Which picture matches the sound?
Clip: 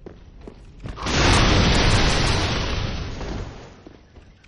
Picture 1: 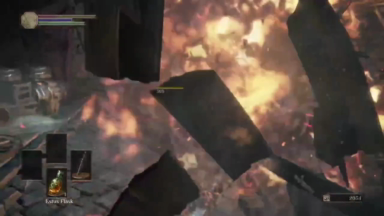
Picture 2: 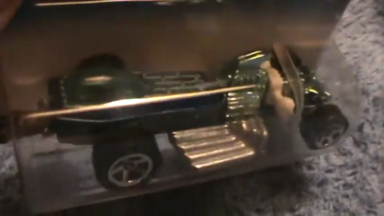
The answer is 1